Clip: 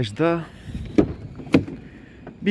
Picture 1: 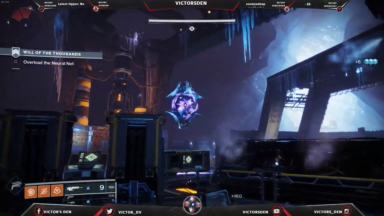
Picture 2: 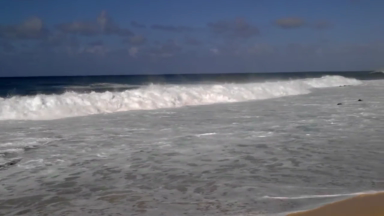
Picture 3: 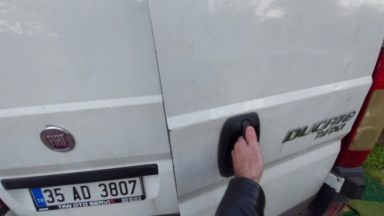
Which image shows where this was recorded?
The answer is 3